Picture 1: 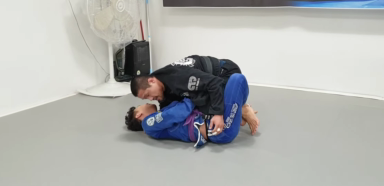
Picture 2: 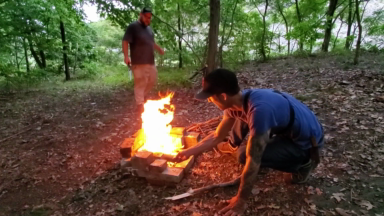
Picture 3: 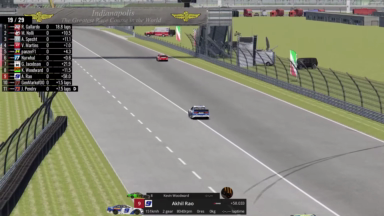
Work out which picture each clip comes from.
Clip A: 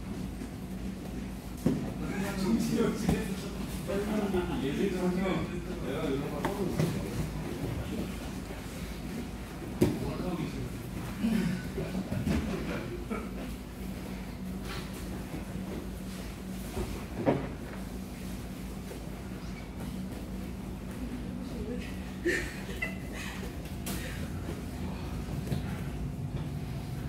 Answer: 1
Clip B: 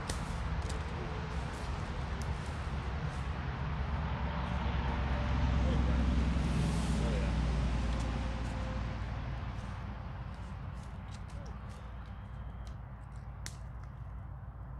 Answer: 2